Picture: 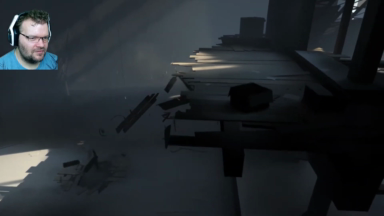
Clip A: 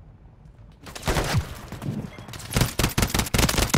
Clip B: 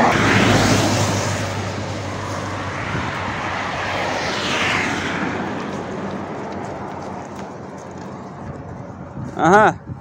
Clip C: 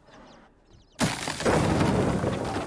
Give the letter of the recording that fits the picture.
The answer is C